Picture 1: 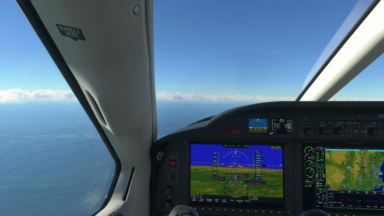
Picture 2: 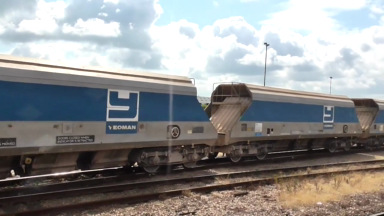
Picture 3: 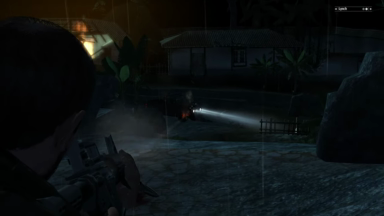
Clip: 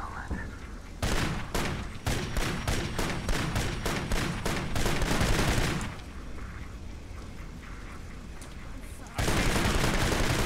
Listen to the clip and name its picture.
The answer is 3